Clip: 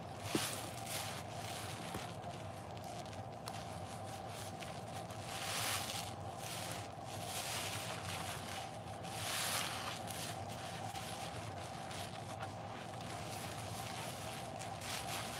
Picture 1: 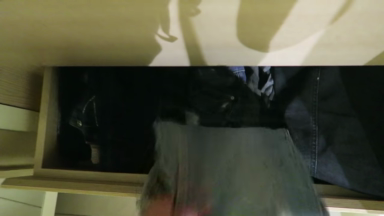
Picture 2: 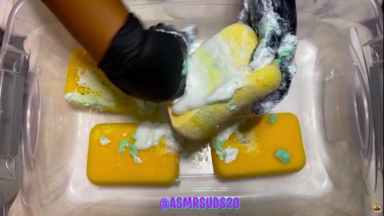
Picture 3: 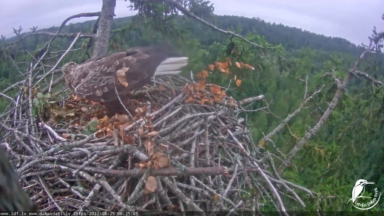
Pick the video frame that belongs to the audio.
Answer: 2